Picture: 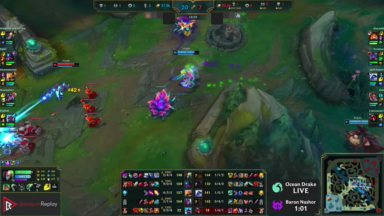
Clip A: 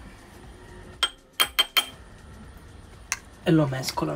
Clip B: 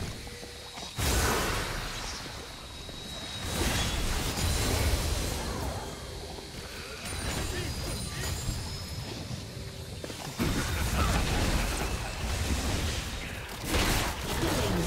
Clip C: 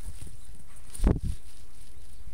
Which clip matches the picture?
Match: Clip B